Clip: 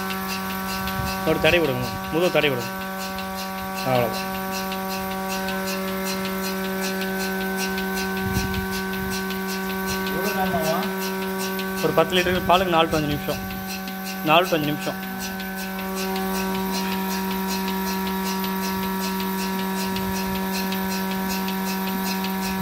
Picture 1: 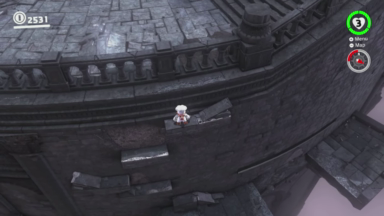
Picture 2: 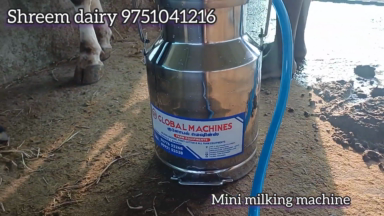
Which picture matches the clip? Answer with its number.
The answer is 2